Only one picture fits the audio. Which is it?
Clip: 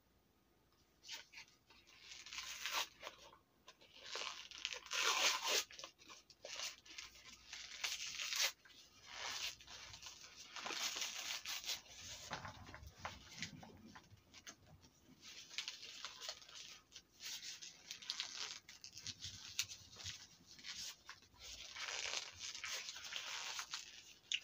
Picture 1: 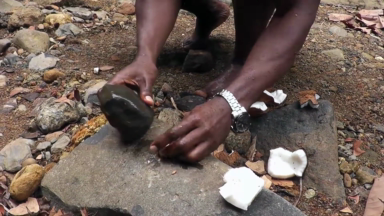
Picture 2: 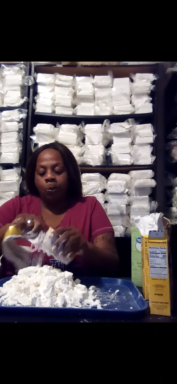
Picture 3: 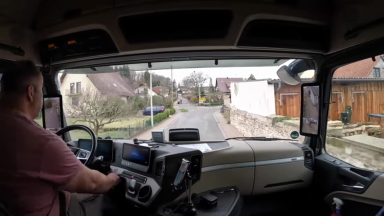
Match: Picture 2